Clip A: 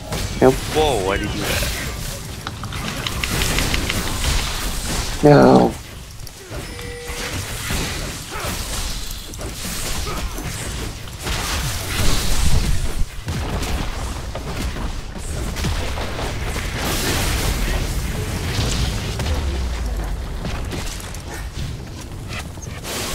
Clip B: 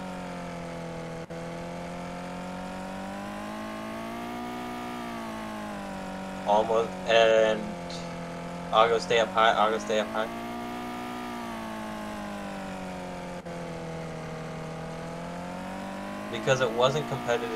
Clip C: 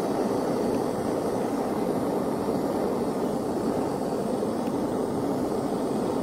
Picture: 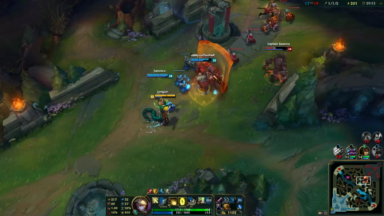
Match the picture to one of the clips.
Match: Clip A